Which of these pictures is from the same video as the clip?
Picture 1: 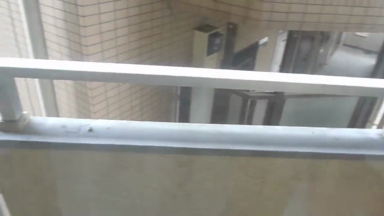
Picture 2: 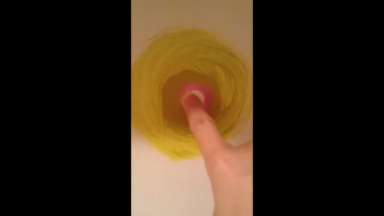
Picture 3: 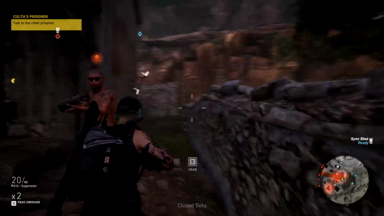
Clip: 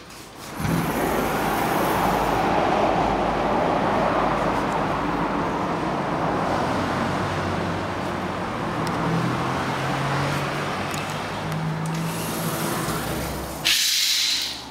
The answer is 1